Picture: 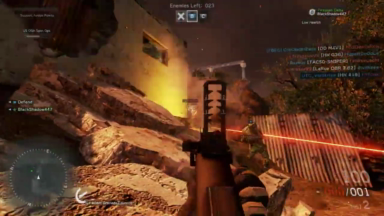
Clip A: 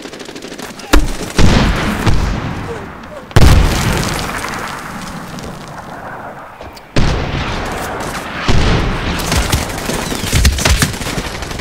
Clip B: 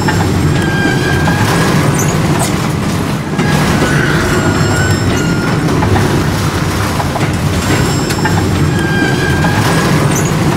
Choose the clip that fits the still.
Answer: A